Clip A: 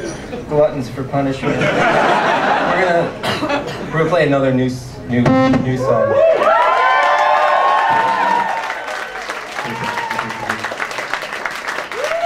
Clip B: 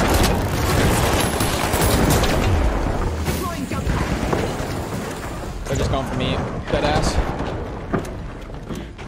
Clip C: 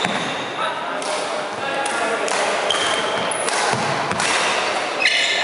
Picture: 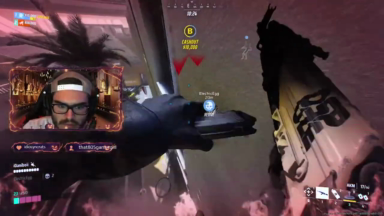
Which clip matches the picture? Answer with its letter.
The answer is B